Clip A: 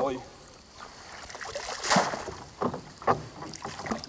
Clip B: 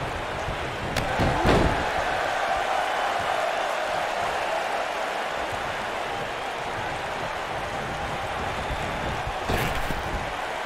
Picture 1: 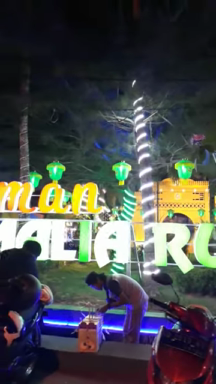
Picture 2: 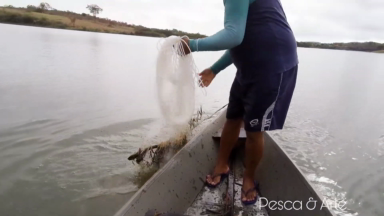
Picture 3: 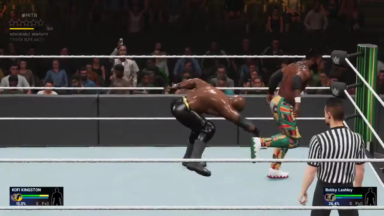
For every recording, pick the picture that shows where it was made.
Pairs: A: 2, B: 3